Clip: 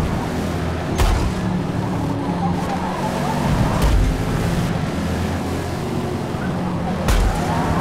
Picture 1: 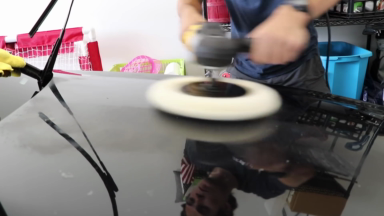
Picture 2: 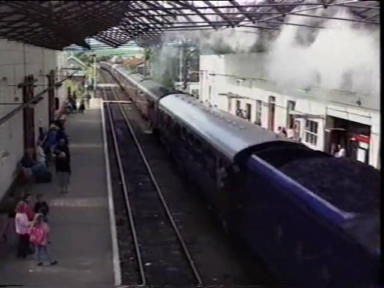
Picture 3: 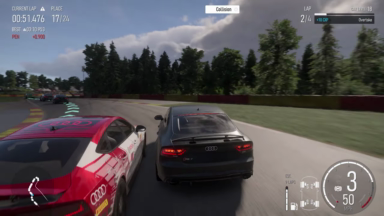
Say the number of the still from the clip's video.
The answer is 3